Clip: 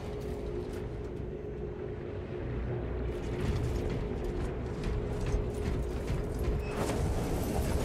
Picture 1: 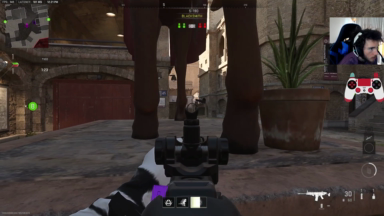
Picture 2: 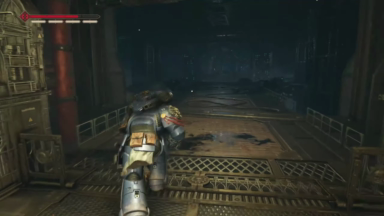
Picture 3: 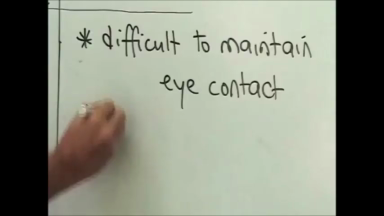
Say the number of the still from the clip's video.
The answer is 2